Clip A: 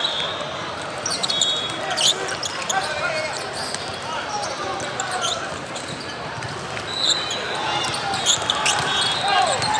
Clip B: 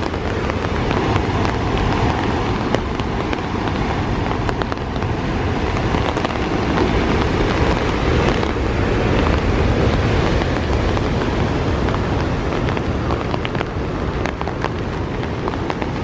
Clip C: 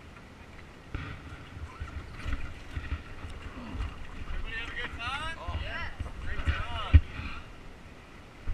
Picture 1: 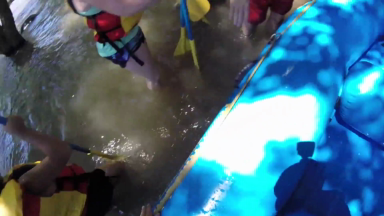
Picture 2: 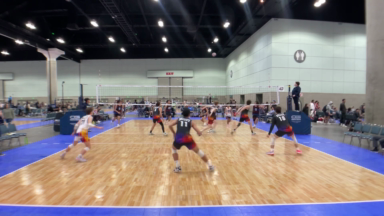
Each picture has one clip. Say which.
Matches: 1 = C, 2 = A